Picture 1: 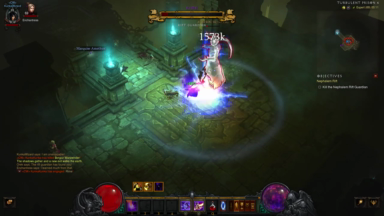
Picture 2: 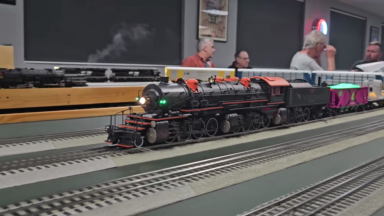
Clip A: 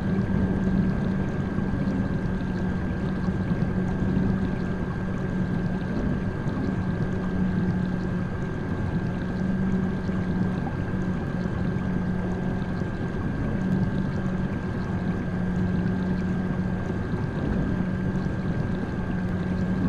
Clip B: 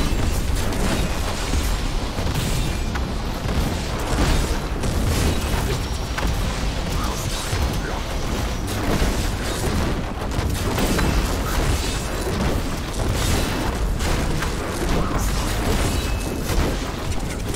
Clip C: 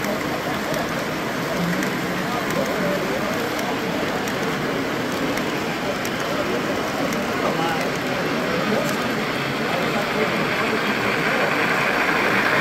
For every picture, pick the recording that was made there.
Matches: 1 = B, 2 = C